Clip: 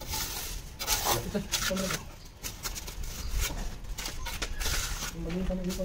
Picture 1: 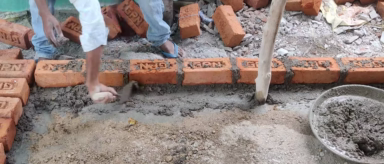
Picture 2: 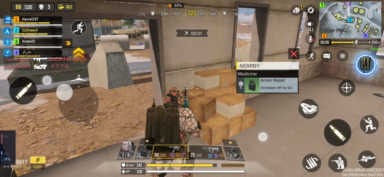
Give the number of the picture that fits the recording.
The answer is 1